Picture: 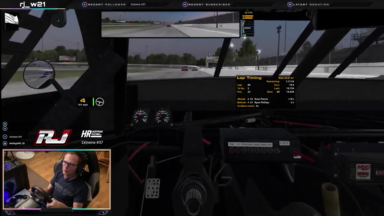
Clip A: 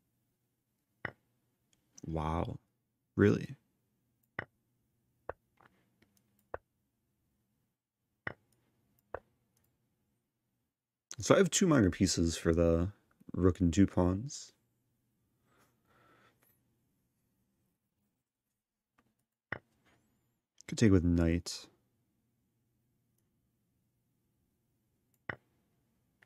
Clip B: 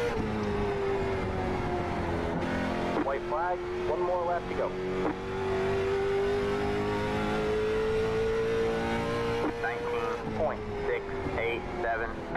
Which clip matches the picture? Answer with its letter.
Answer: B